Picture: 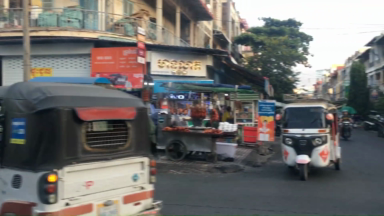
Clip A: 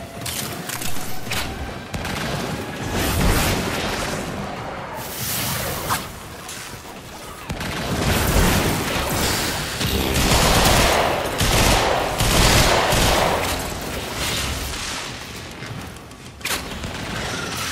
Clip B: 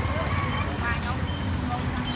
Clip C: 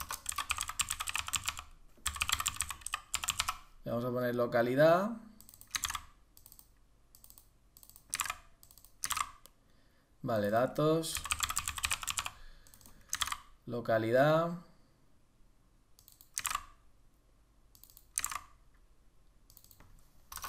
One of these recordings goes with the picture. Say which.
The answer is B